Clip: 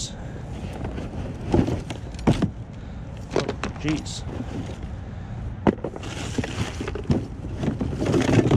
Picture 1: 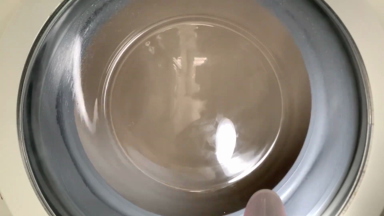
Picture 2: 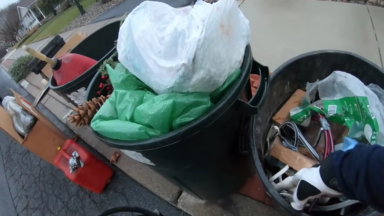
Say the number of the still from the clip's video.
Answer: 2